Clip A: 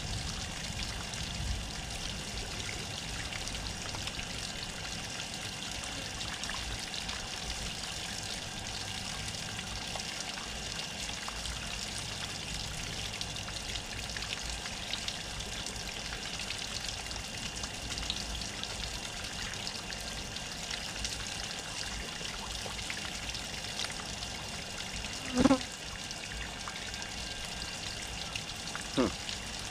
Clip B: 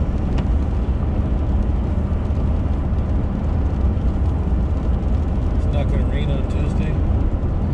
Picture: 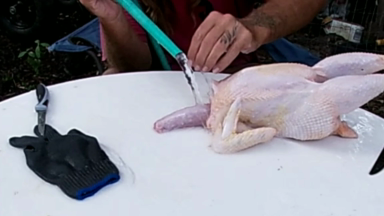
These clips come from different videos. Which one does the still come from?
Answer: A